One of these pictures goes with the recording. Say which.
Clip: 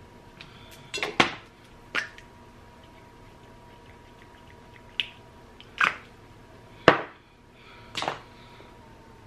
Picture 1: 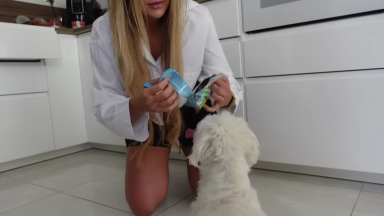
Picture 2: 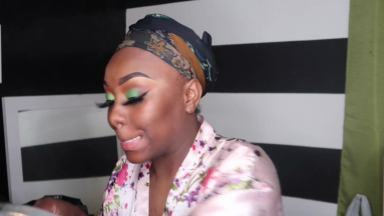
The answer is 2